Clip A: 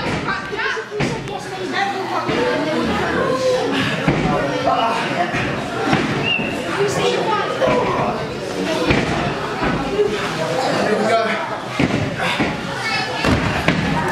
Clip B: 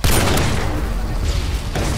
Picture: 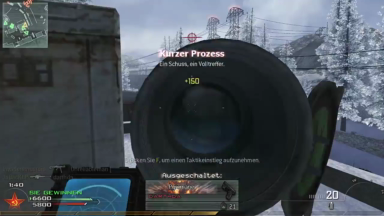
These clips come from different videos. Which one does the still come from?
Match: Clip B